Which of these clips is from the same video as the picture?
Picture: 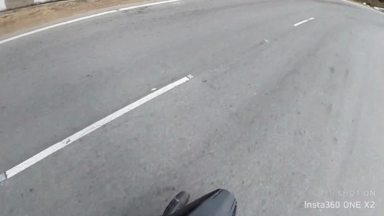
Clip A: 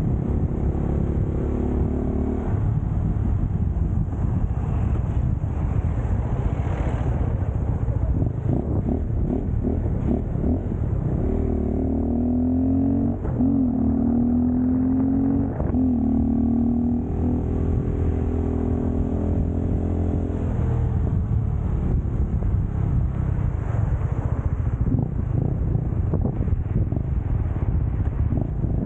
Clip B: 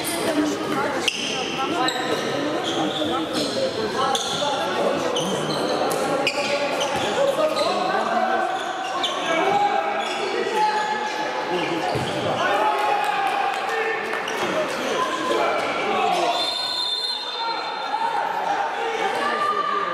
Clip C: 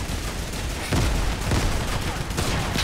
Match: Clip A